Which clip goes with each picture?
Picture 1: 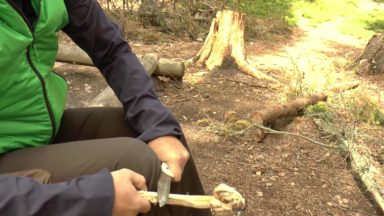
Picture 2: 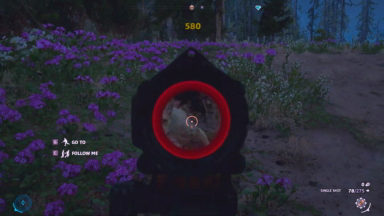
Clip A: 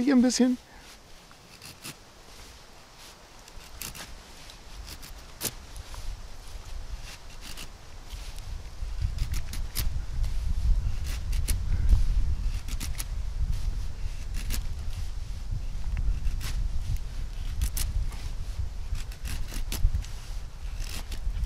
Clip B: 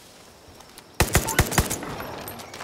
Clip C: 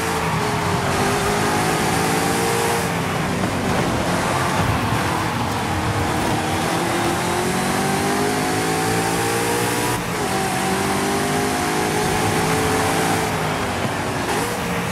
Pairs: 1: A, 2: B